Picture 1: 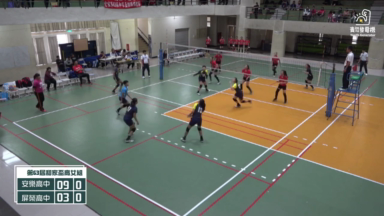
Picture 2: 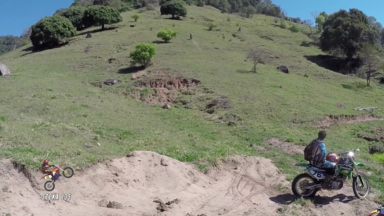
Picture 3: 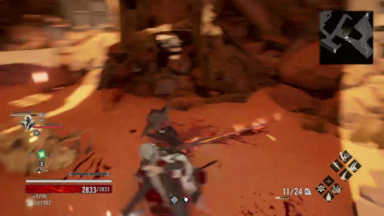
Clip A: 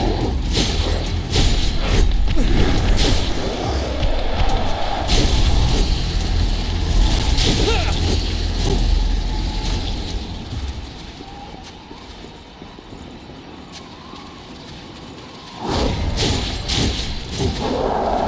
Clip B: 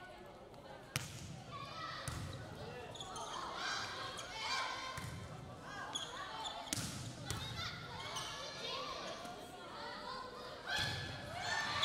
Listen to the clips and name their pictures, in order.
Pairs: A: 3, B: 1